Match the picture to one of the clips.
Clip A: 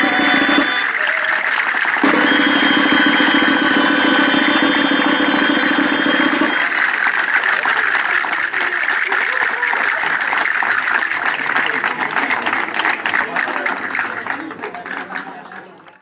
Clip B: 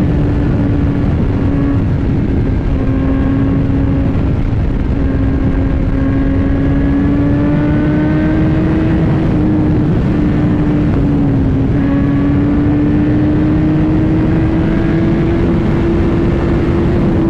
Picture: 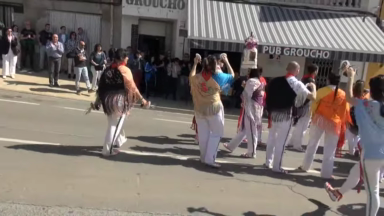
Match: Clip A